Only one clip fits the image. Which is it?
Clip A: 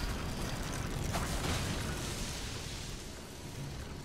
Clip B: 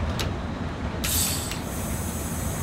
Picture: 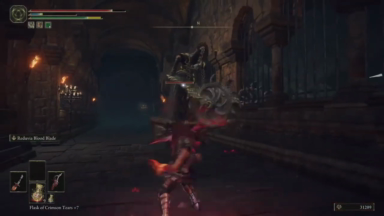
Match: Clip A